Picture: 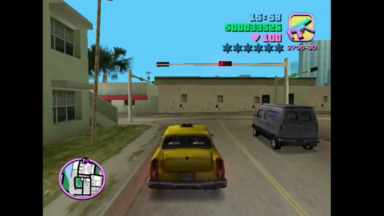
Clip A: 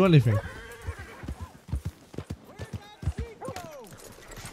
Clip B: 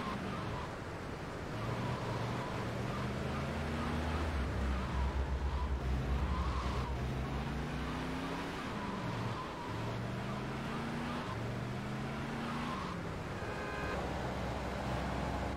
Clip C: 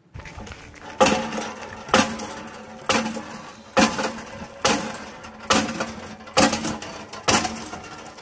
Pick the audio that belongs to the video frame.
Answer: B